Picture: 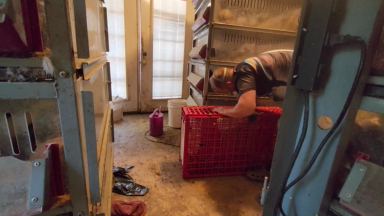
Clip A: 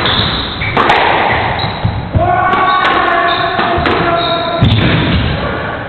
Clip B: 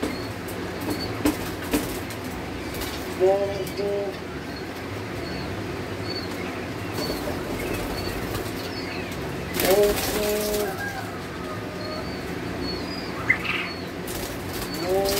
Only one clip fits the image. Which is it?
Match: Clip B